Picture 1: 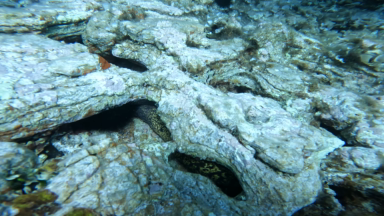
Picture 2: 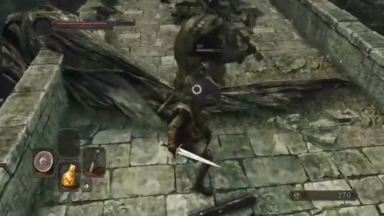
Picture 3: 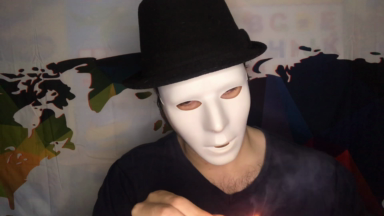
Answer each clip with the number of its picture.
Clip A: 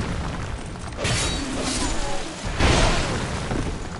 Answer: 2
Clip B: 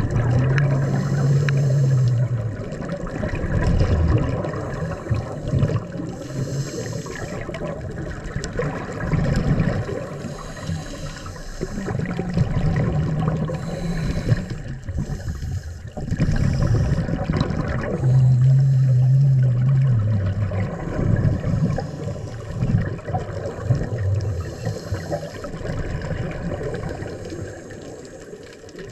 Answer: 1